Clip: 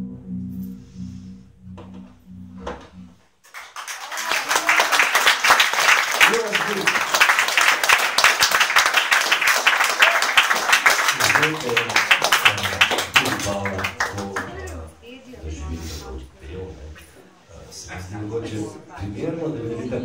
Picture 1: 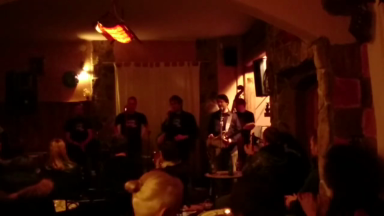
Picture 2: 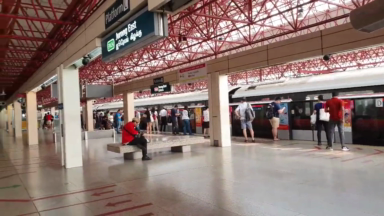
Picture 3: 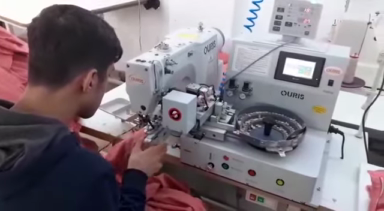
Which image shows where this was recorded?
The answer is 1